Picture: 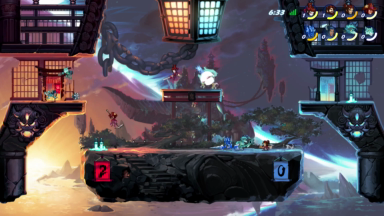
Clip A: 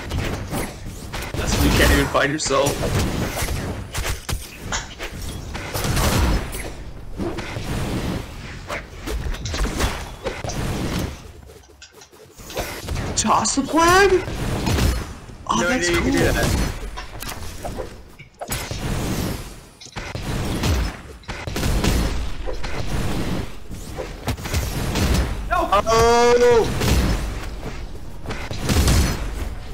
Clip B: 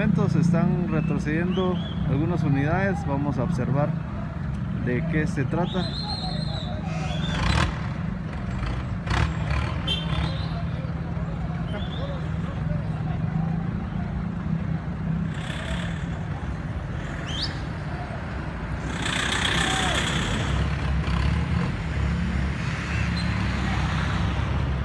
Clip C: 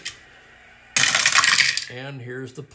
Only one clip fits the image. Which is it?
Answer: A